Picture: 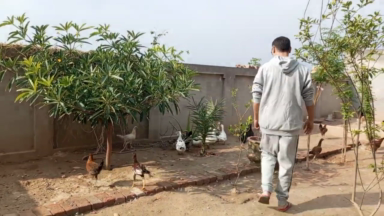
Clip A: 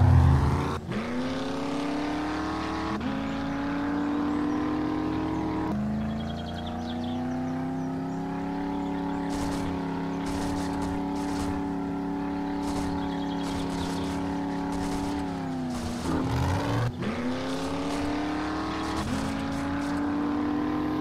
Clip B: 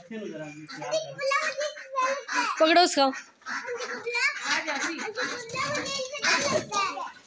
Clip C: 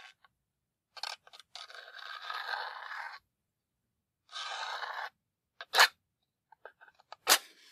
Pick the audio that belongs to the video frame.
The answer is B